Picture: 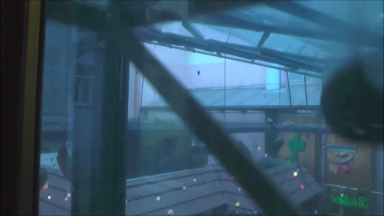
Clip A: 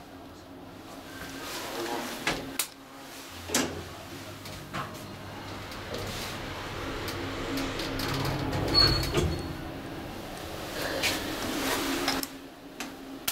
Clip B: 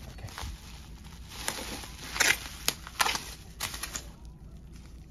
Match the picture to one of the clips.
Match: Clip A